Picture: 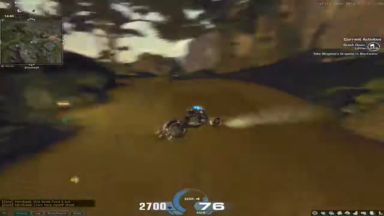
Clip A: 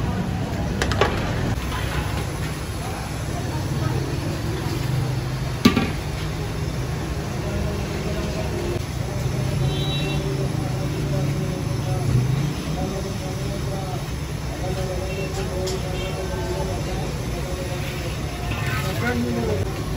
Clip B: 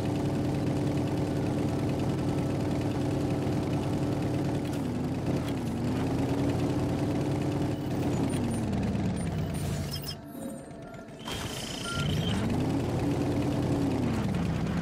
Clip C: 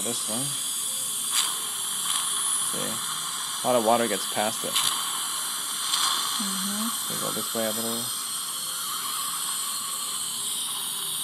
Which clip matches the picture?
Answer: B